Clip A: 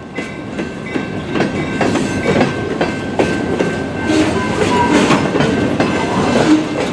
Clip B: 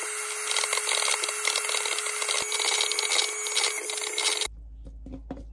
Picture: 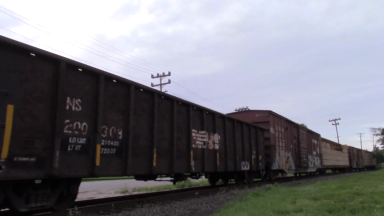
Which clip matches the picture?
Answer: A